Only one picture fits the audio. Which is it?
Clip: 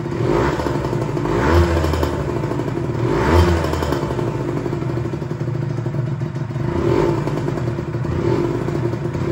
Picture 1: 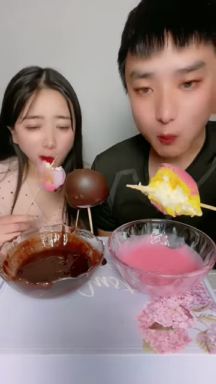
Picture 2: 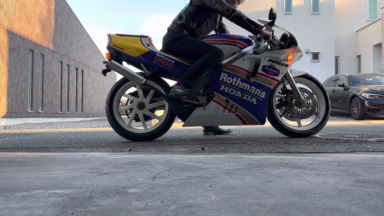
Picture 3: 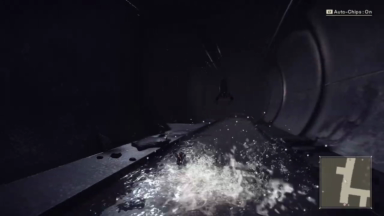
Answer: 2